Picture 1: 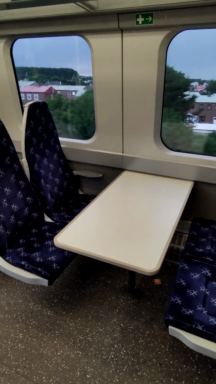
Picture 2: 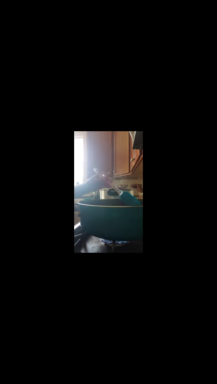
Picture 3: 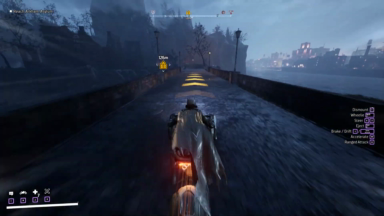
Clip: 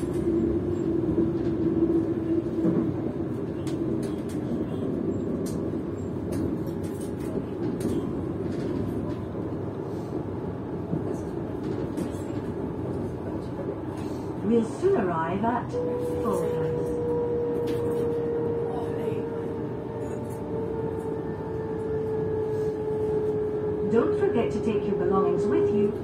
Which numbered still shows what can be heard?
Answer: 1